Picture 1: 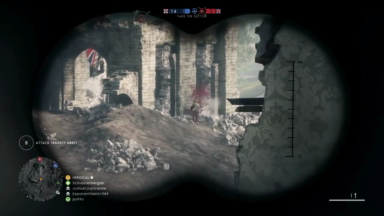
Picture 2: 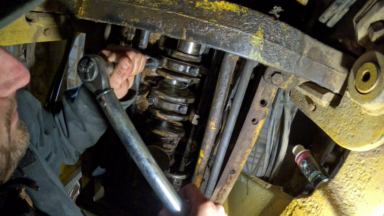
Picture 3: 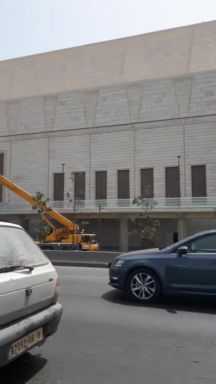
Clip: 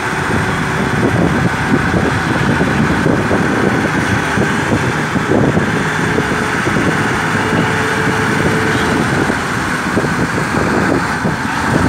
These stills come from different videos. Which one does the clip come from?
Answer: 3